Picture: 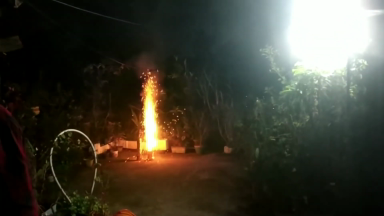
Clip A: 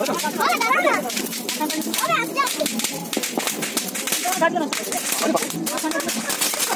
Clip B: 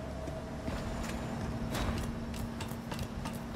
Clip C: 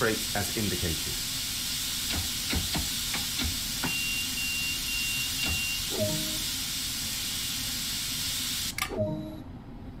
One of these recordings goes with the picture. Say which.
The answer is A